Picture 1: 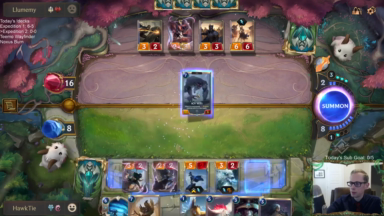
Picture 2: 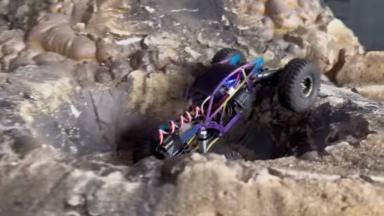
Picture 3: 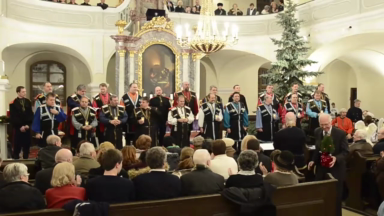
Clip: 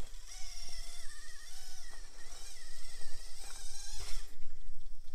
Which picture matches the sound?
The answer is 2